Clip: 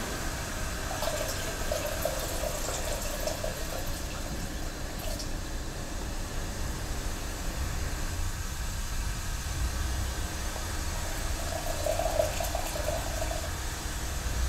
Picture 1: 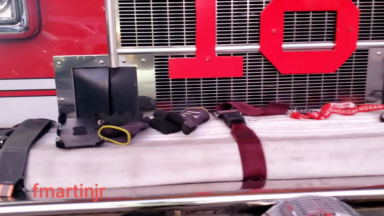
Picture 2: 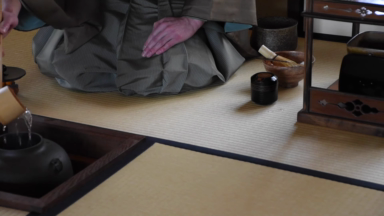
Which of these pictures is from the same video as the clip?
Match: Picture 2